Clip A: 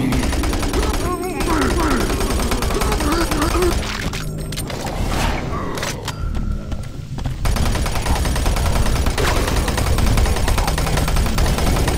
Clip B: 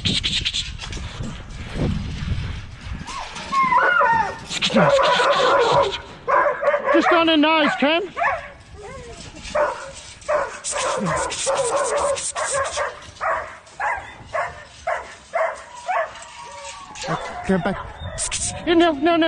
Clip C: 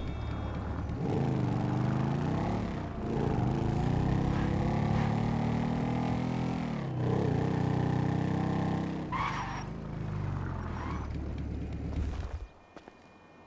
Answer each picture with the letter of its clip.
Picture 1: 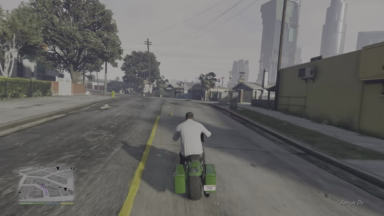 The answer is C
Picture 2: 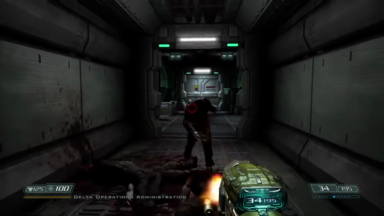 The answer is A